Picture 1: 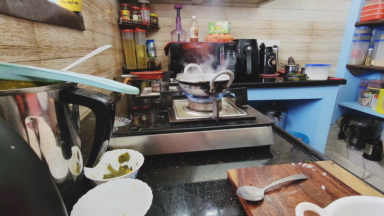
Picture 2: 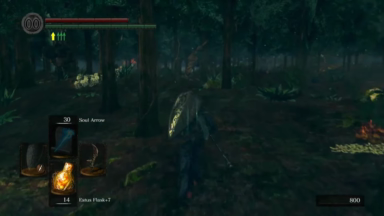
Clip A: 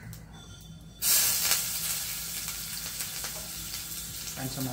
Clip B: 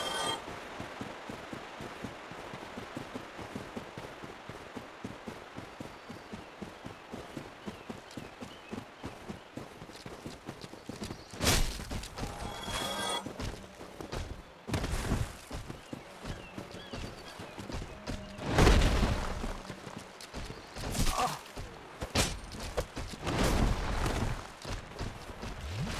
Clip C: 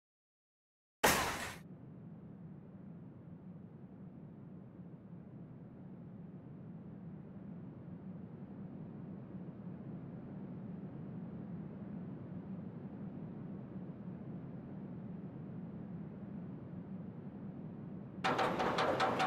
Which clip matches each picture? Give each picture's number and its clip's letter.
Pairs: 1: A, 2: B